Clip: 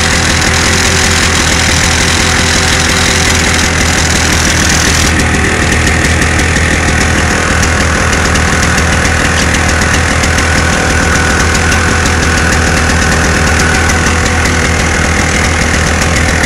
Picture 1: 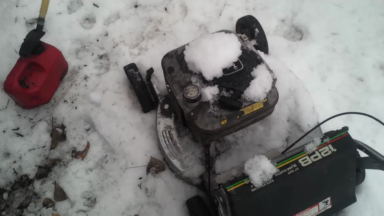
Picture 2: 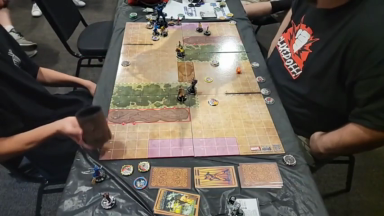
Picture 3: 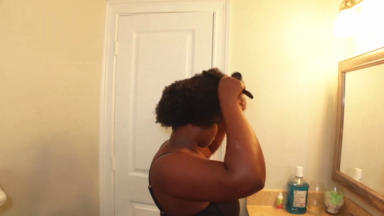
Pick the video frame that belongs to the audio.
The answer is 1